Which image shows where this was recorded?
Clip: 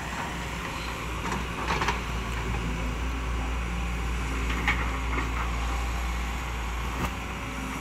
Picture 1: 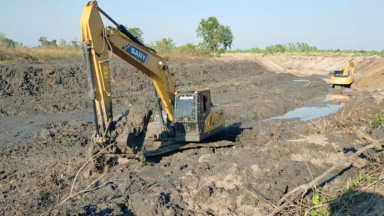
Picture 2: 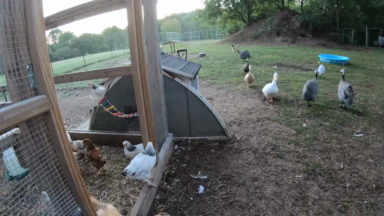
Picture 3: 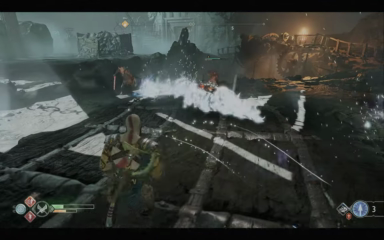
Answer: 1